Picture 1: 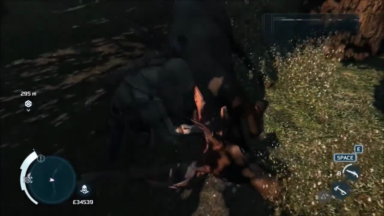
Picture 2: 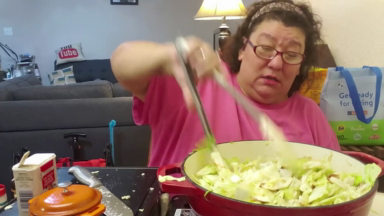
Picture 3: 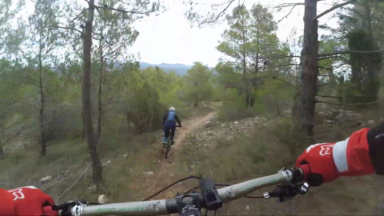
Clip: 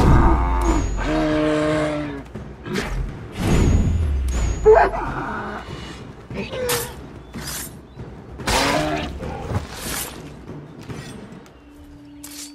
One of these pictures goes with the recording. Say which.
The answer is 1